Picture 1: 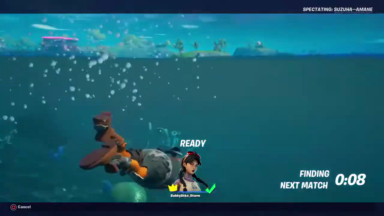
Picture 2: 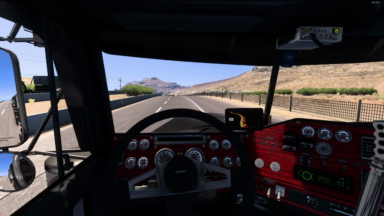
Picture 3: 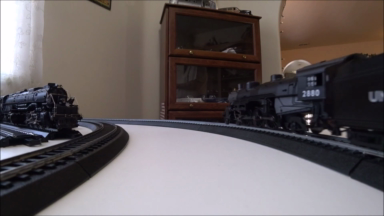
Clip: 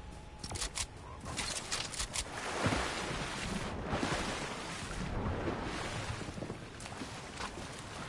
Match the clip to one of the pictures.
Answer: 1